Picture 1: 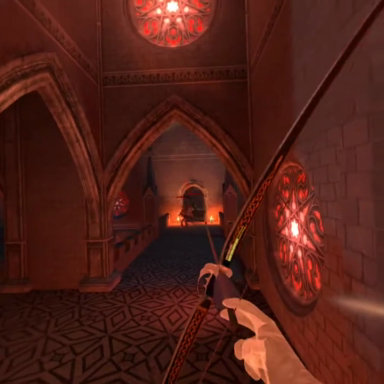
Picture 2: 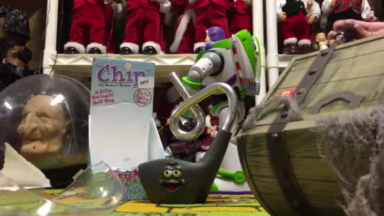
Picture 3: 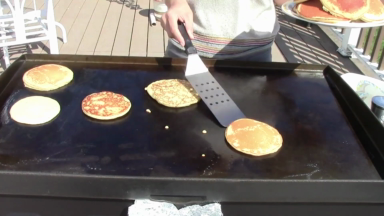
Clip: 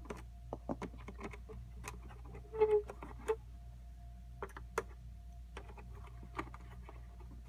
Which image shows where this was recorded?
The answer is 2